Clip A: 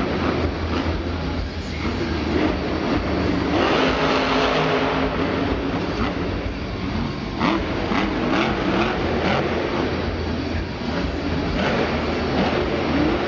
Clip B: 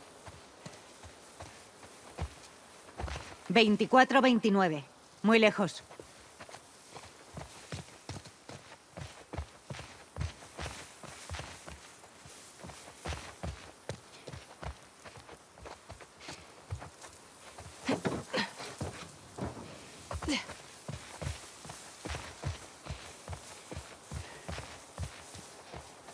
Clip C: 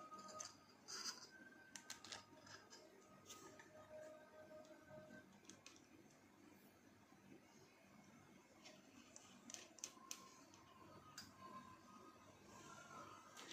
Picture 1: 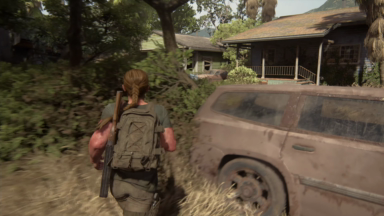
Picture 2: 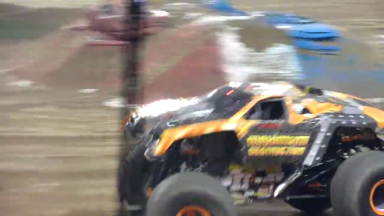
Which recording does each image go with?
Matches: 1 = B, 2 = A